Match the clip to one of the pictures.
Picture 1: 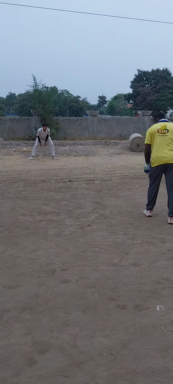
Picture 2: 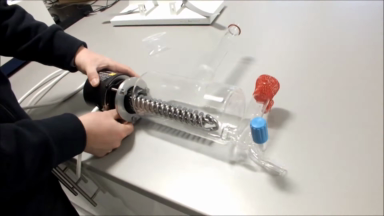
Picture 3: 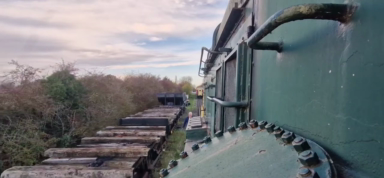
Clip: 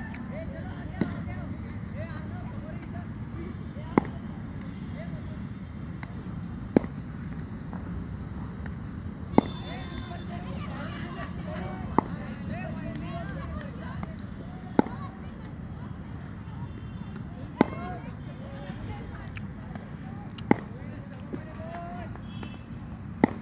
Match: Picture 1